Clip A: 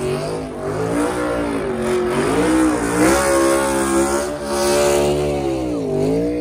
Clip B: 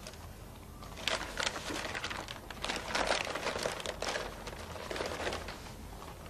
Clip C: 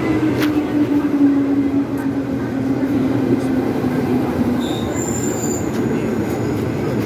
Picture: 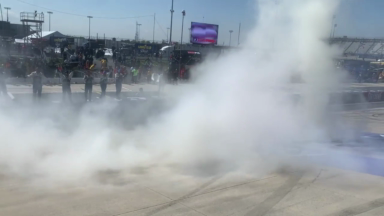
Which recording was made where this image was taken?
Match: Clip A